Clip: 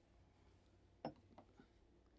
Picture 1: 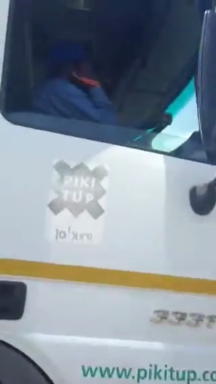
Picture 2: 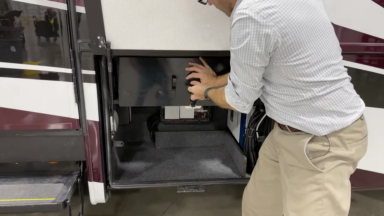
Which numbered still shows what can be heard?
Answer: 2